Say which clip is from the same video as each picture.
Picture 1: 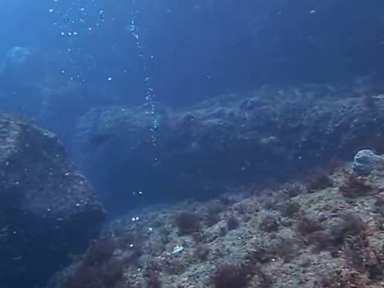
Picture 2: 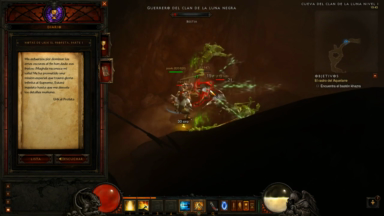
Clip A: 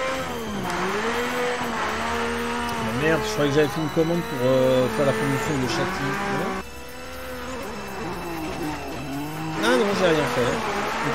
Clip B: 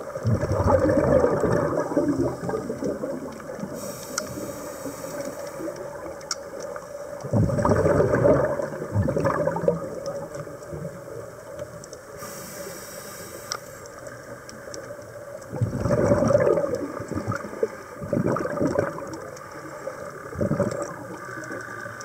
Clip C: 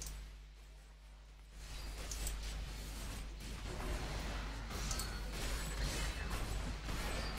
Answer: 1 B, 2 C